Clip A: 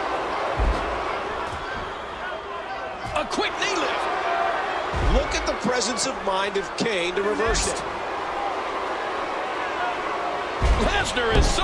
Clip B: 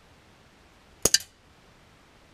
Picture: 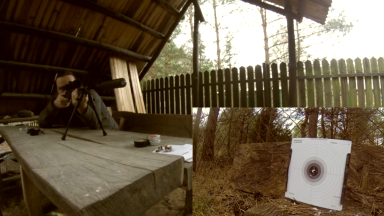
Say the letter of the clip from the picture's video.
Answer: B